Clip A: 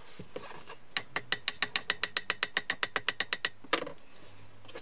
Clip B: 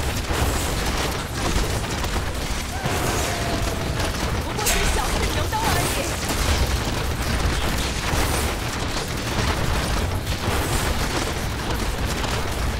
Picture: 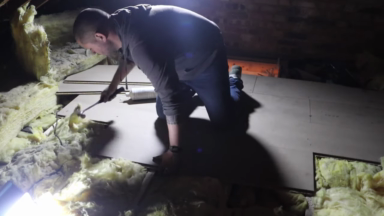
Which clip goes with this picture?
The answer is A